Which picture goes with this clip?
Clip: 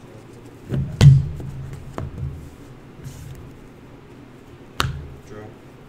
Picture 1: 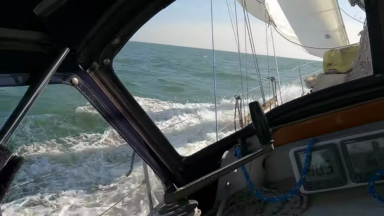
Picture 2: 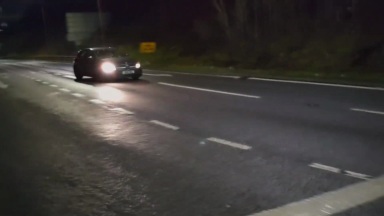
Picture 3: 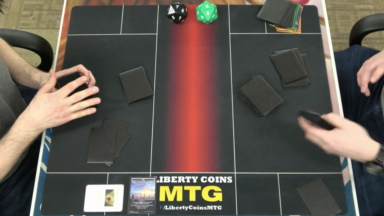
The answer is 3